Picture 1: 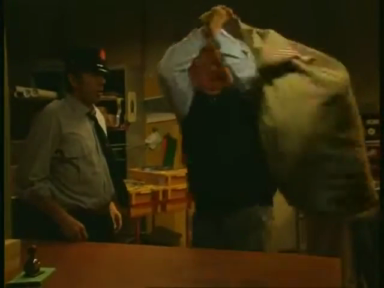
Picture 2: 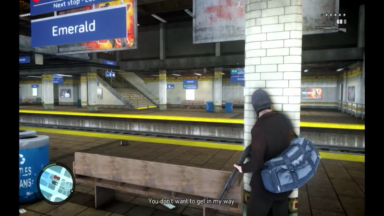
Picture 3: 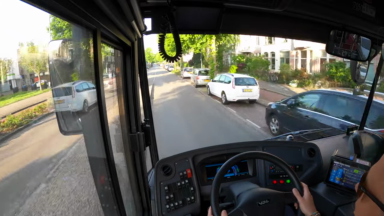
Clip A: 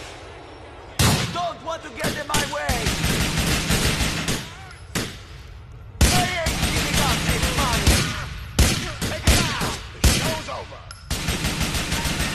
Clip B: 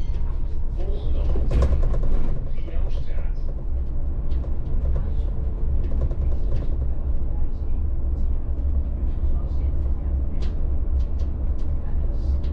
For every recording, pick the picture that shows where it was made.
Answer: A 2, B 3